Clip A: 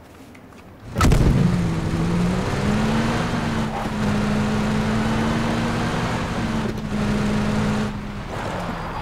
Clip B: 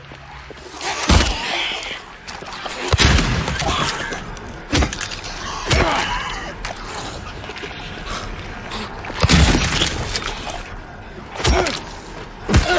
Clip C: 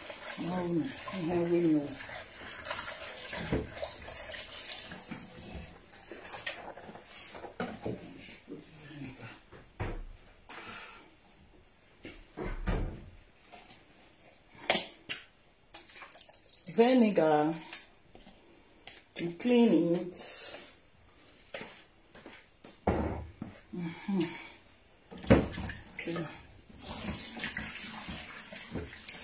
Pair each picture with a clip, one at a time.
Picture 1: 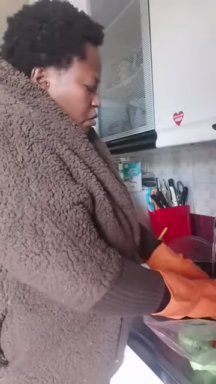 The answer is C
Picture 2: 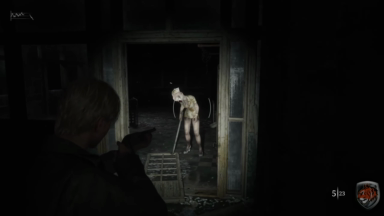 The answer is B